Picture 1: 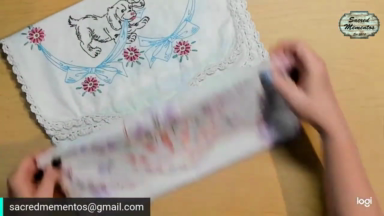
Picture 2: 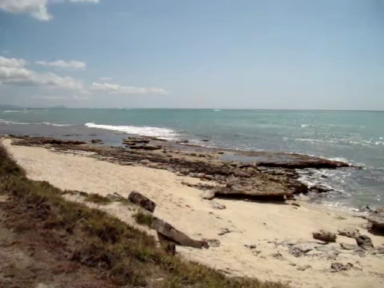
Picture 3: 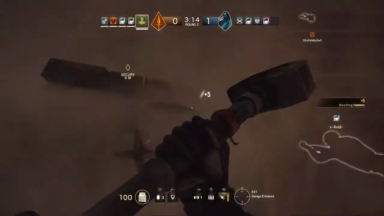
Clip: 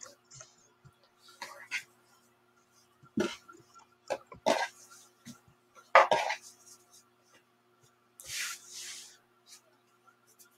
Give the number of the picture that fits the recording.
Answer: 1